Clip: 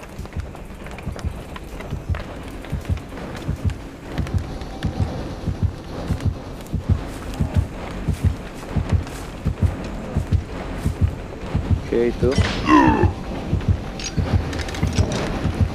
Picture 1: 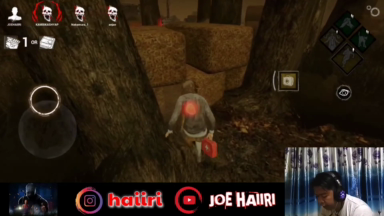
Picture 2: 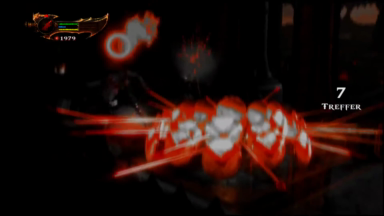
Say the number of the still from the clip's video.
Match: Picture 1